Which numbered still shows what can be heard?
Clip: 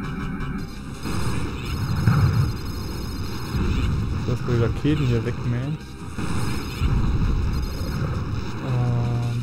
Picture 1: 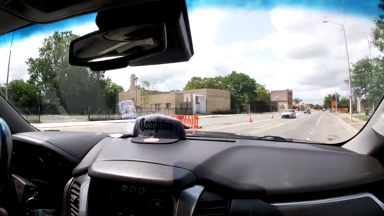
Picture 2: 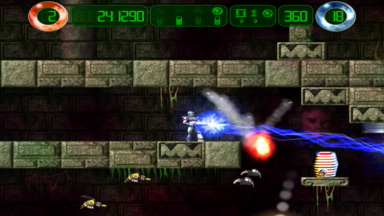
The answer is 2